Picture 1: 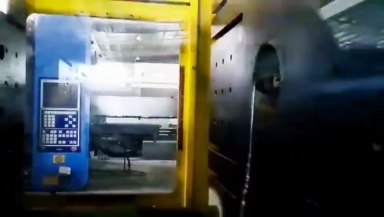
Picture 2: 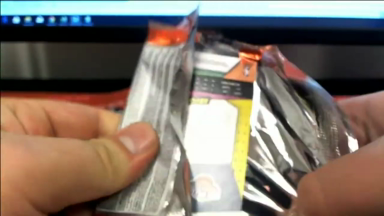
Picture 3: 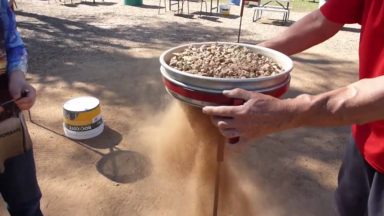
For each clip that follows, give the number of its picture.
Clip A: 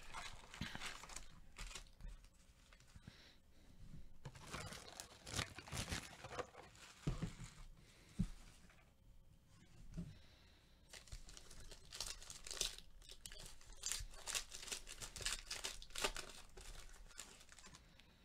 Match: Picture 2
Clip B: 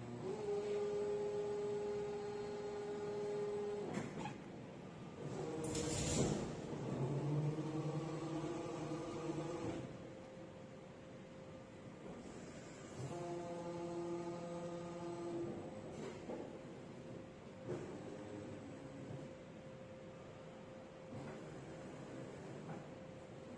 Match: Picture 1